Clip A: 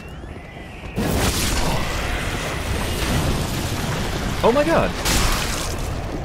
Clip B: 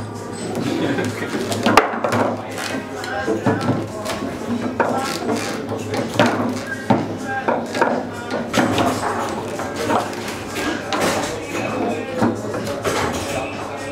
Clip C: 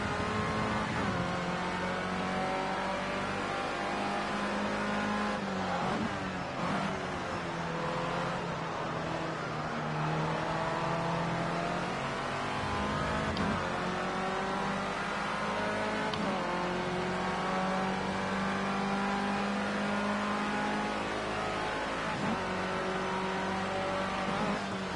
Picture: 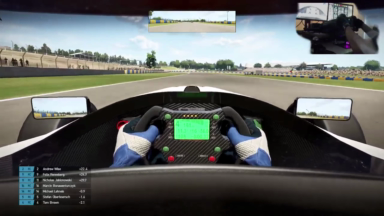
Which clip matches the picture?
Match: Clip C